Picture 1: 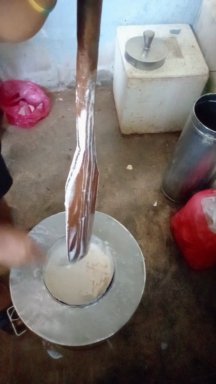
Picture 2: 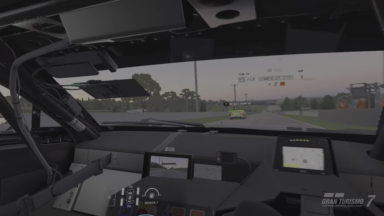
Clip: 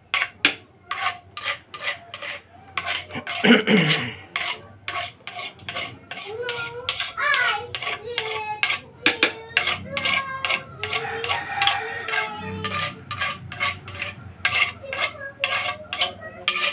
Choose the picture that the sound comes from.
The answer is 1